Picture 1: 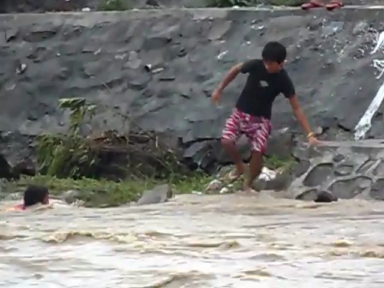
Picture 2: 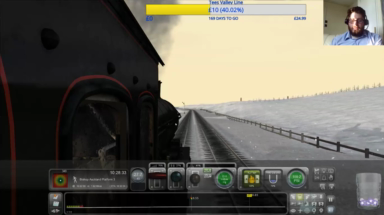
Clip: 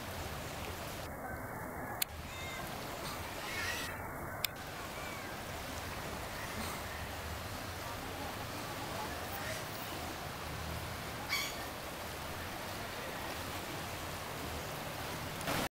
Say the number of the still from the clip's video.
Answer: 1